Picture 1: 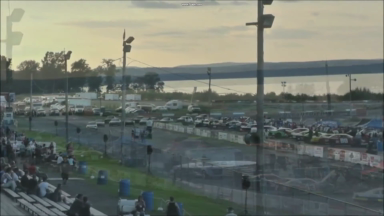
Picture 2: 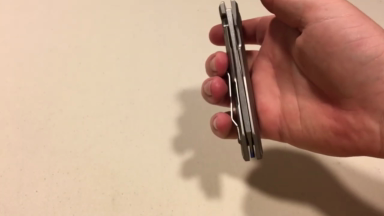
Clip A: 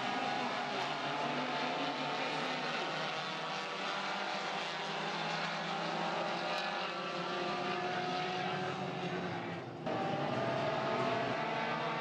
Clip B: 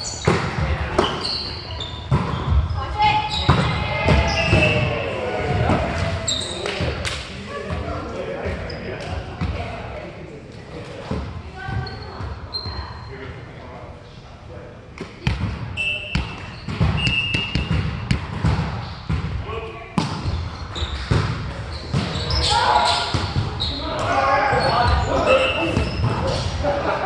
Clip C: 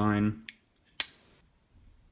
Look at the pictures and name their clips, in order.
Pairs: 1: A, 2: C